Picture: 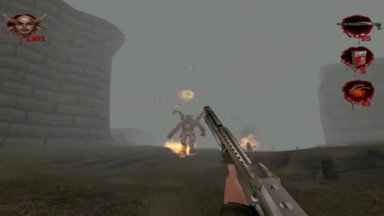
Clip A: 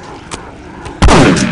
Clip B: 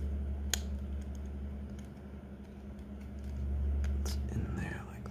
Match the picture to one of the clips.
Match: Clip A